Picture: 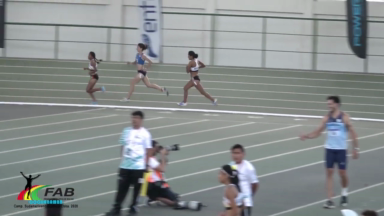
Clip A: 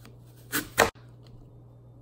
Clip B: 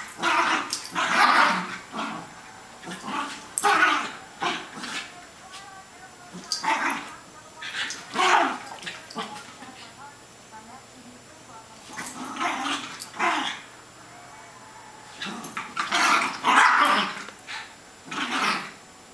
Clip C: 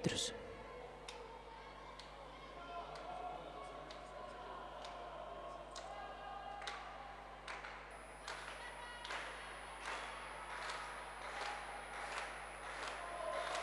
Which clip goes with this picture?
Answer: C